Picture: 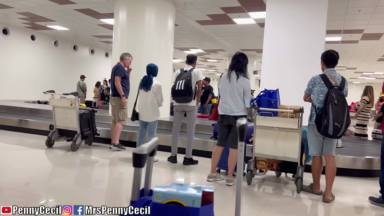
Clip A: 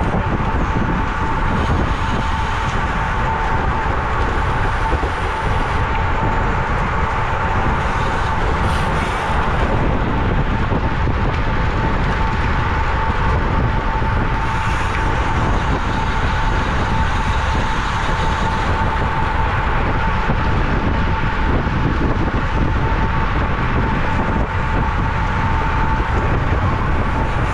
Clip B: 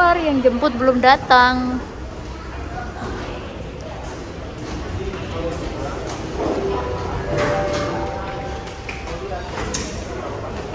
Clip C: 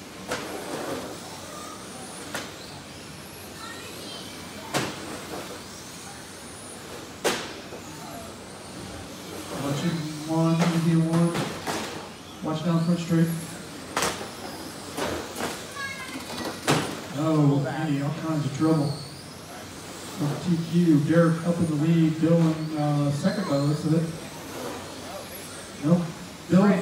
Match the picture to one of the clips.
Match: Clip B